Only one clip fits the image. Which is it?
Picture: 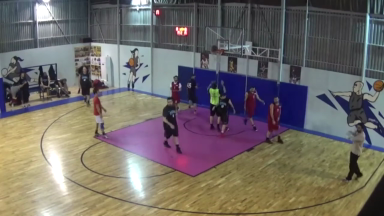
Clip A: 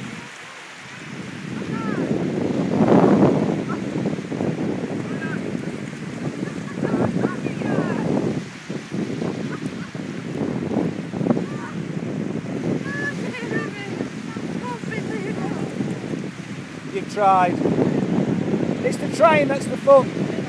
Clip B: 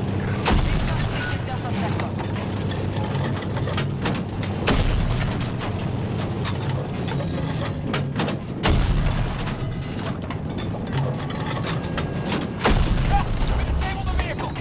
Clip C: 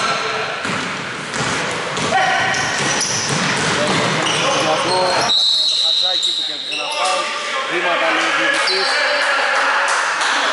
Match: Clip C